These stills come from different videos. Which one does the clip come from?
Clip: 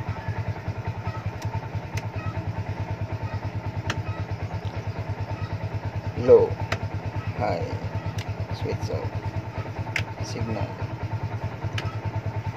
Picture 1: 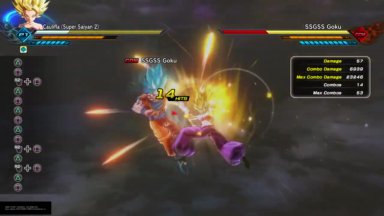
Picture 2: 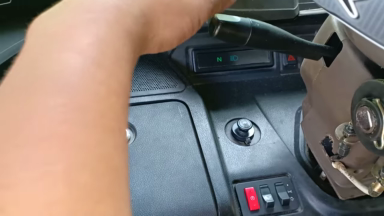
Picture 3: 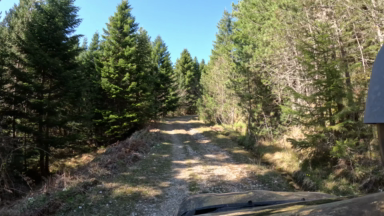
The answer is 2